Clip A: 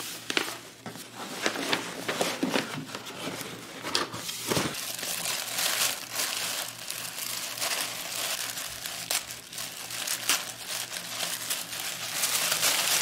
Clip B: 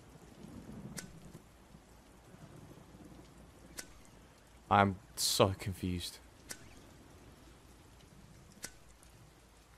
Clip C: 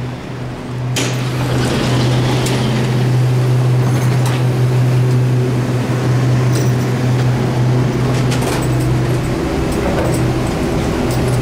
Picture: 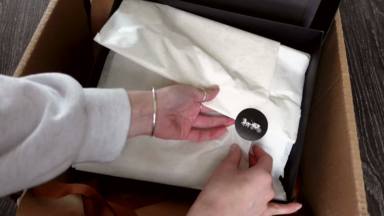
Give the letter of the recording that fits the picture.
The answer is A